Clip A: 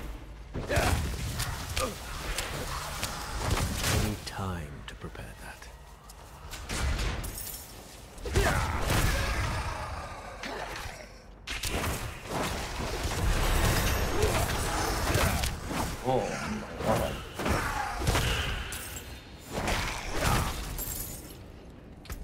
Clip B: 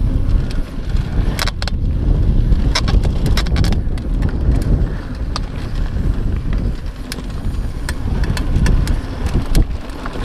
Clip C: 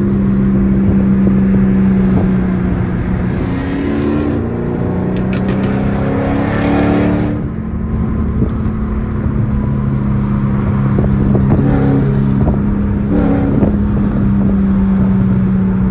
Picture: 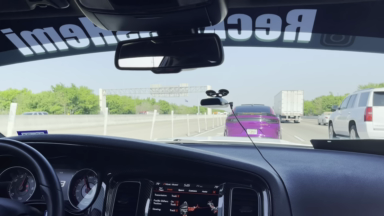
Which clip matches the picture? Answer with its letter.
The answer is C